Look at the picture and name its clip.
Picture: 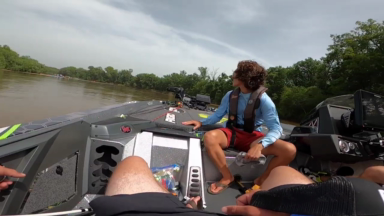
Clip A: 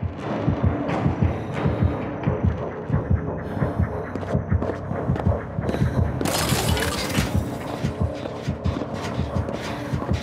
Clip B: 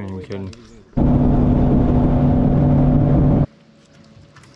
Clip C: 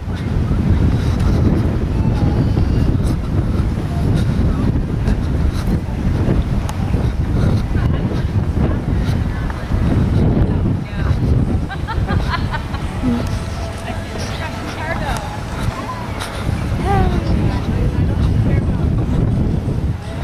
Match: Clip B